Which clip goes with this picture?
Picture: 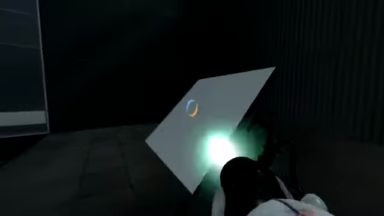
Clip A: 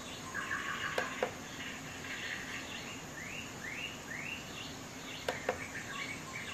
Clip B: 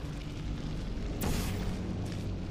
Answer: B